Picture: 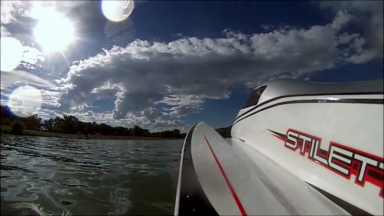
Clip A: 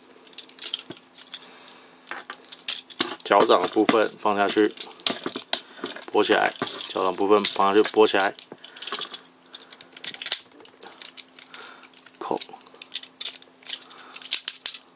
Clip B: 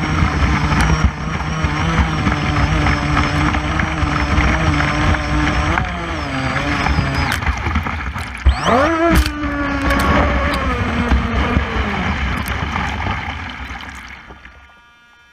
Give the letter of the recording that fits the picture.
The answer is B